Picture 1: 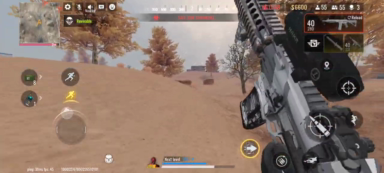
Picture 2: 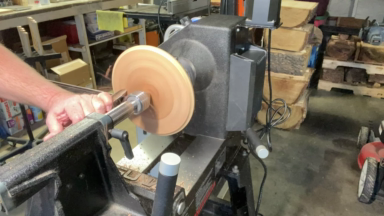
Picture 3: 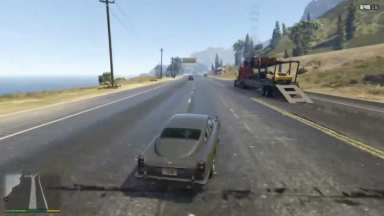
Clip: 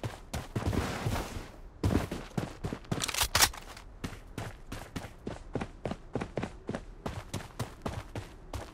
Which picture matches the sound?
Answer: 1